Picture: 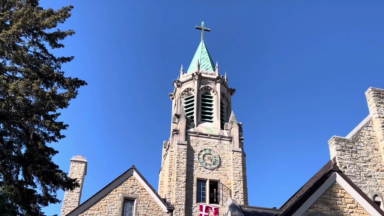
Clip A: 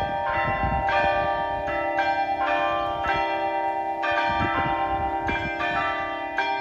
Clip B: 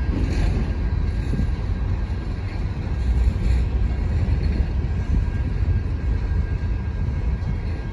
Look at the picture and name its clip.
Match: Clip A